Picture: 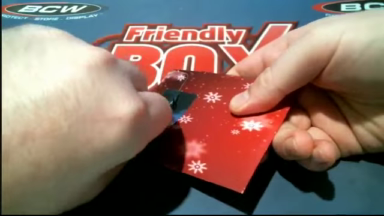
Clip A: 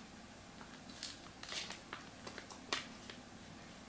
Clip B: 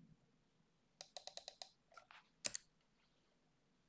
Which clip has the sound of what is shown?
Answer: A